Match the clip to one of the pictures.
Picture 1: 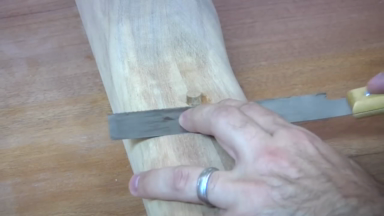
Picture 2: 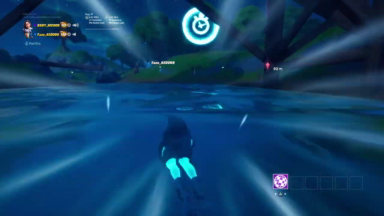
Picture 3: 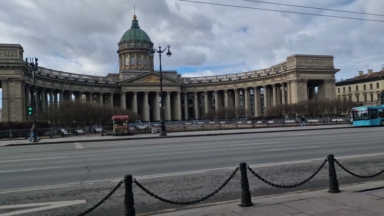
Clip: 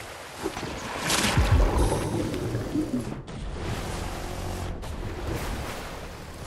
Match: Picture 2